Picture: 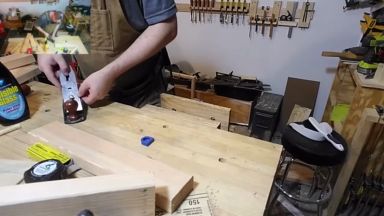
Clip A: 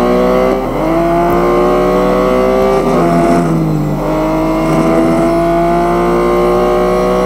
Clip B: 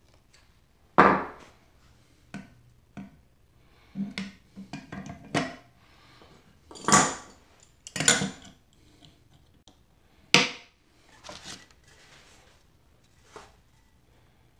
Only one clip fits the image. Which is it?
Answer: B